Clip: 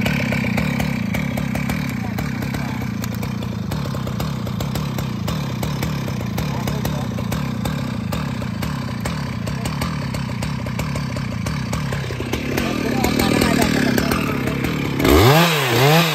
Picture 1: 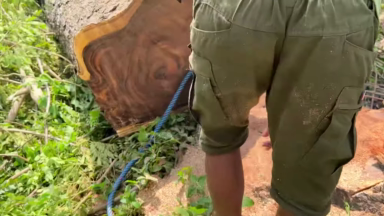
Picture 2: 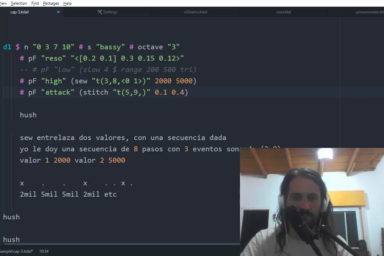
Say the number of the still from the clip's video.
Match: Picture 1